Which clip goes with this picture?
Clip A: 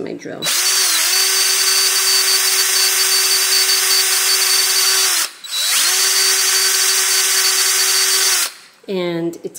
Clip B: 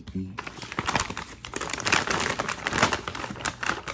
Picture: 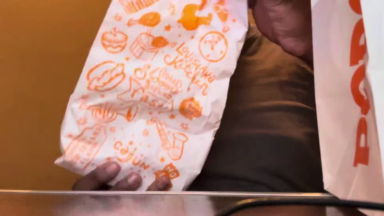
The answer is B